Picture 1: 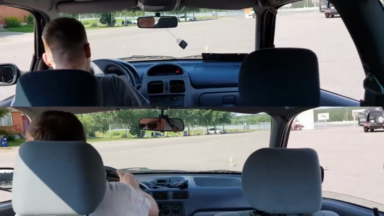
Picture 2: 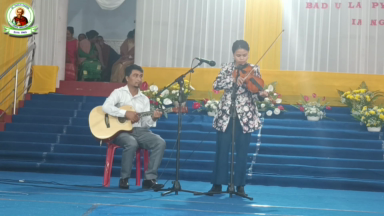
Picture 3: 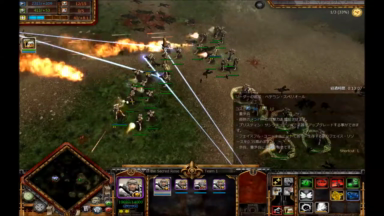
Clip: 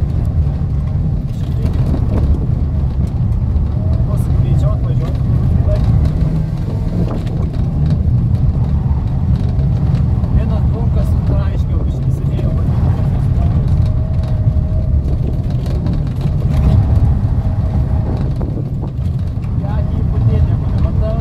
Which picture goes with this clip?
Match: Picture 1